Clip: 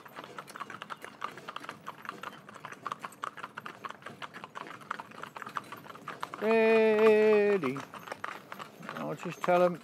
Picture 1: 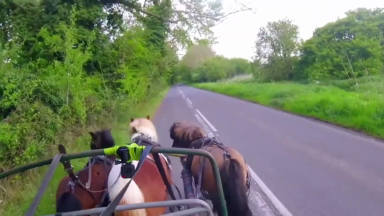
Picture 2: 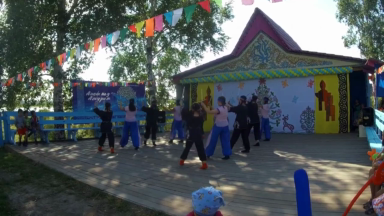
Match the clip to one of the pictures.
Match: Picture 1